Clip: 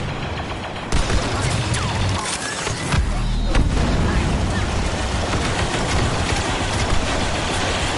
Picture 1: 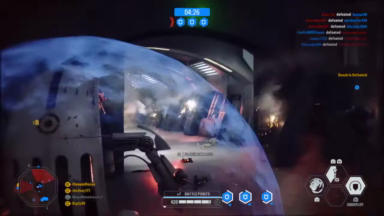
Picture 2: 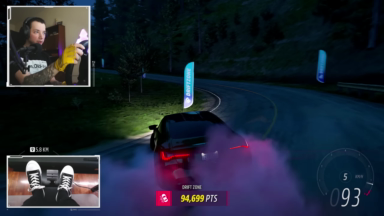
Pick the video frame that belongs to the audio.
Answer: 1